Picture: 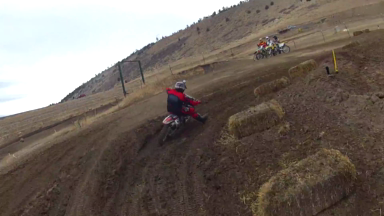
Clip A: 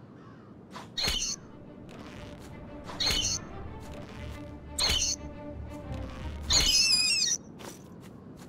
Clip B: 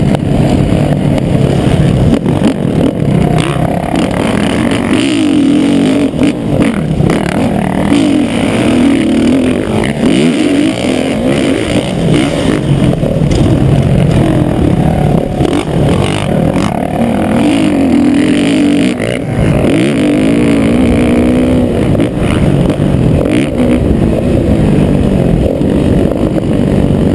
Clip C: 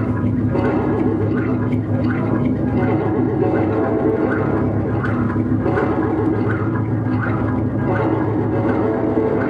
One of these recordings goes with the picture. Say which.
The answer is B